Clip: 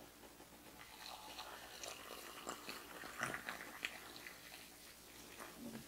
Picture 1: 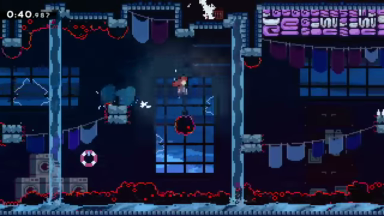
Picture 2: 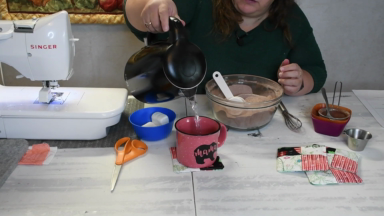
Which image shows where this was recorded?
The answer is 2